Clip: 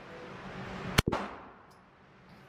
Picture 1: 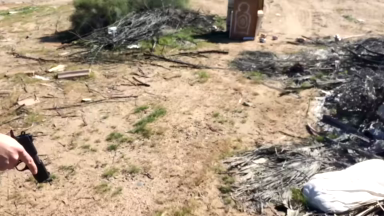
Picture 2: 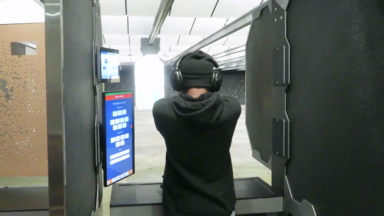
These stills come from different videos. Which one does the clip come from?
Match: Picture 2